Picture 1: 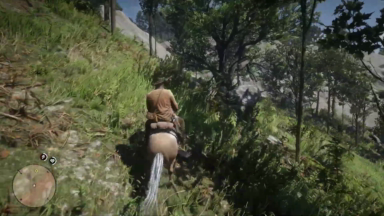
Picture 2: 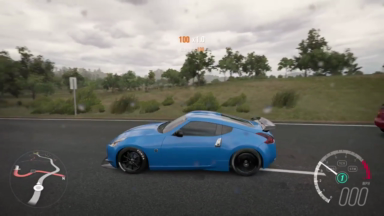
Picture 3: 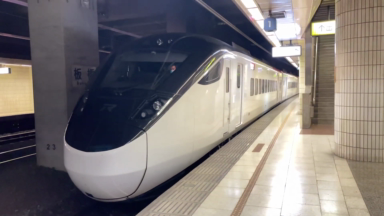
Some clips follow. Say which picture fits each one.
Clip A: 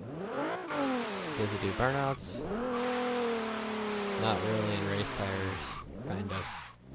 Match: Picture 2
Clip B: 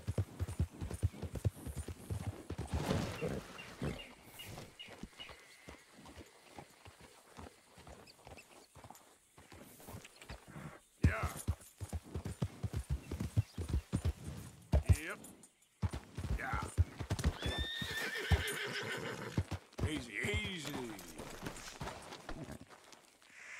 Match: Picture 1